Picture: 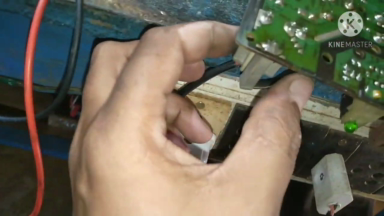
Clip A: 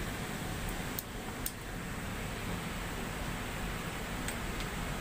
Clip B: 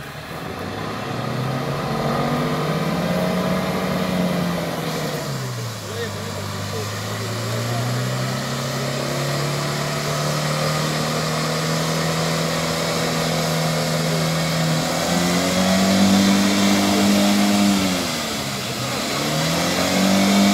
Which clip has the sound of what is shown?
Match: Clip A